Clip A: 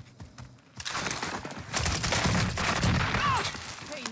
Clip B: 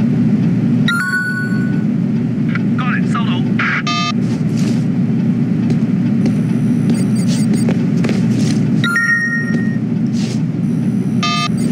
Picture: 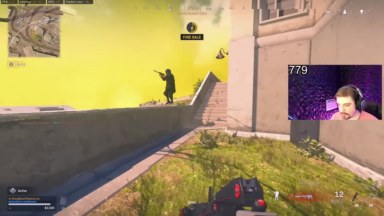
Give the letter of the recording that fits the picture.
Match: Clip A